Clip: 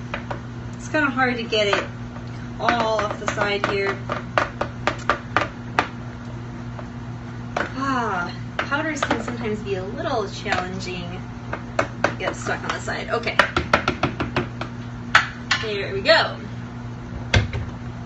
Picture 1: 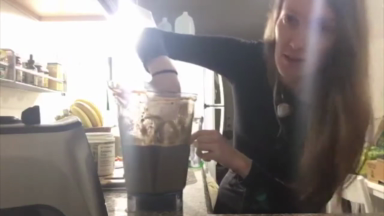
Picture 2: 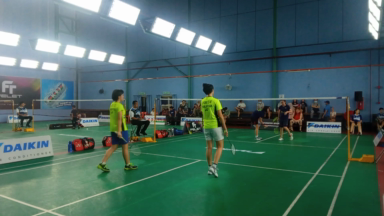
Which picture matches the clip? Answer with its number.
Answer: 1